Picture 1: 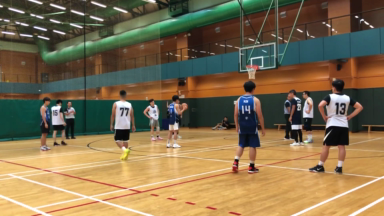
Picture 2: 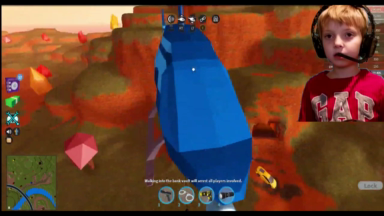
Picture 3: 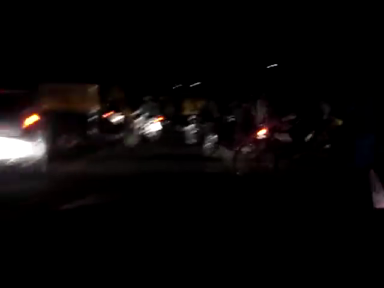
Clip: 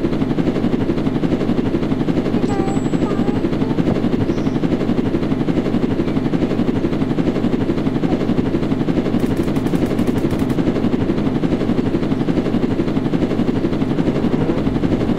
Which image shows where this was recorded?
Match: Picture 2